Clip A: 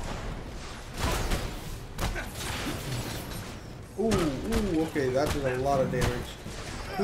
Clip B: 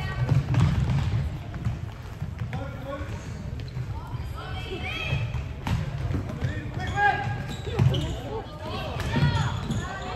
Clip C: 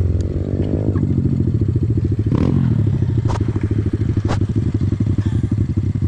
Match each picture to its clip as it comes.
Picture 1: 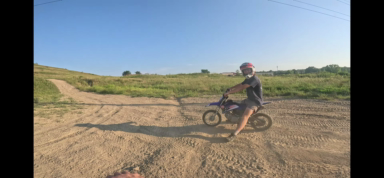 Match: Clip C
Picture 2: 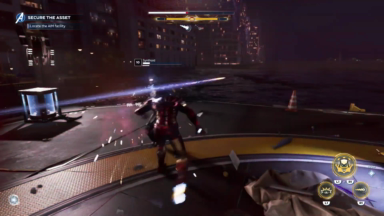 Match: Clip A